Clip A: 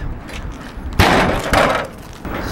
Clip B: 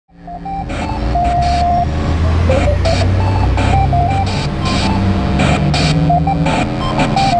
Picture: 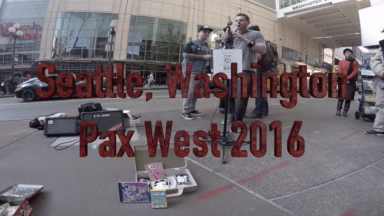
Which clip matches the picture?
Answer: B